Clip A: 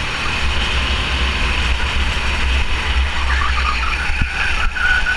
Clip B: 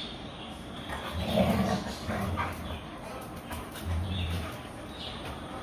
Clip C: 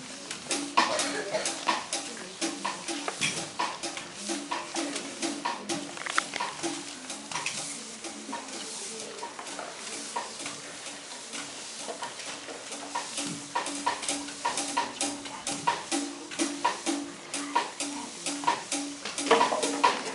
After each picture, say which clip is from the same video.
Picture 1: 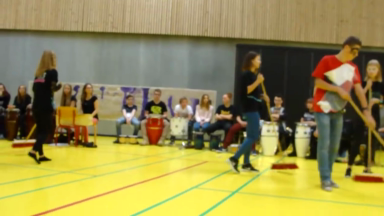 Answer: C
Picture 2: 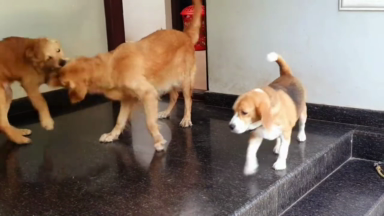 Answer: B